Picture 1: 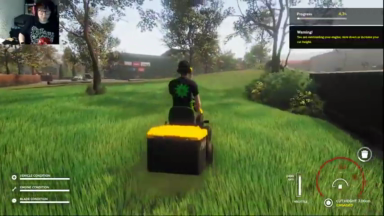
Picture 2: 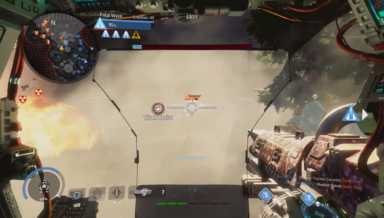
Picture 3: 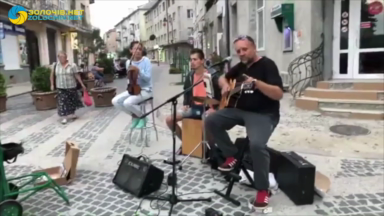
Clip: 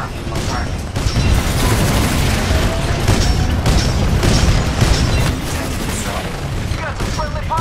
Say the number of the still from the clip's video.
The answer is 2